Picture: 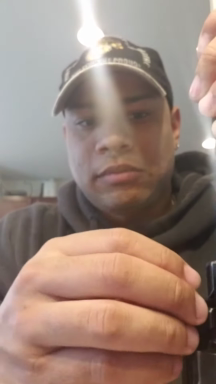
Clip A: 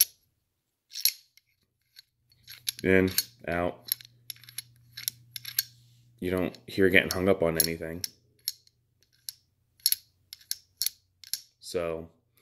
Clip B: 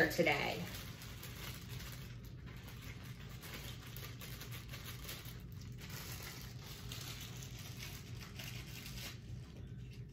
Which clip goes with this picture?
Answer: A